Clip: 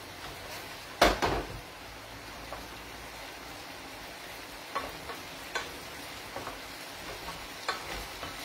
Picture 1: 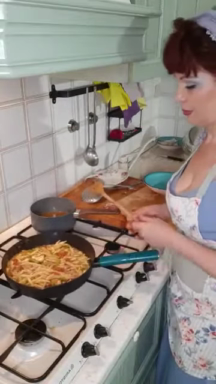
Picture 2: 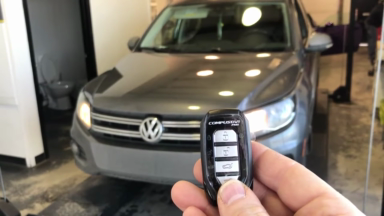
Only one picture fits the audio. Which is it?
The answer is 1